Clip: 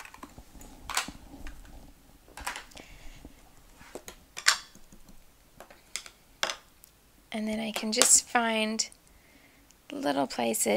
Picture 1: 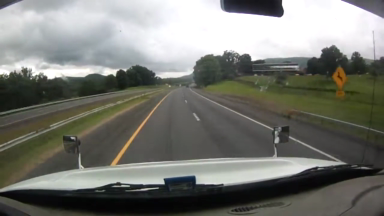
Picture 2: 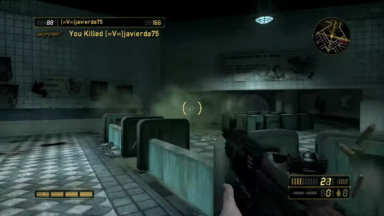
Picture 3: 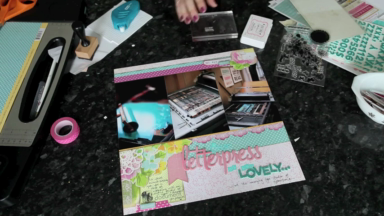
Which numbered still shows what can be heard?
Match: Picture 3